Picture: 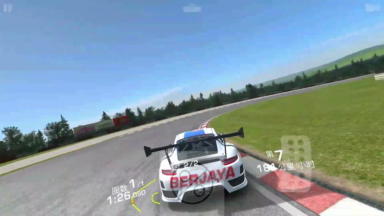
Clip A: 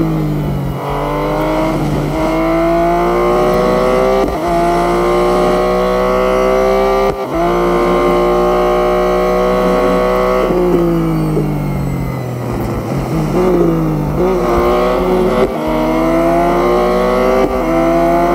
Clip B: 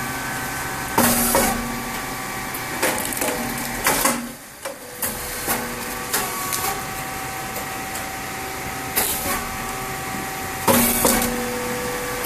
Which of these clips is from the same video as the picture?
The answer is A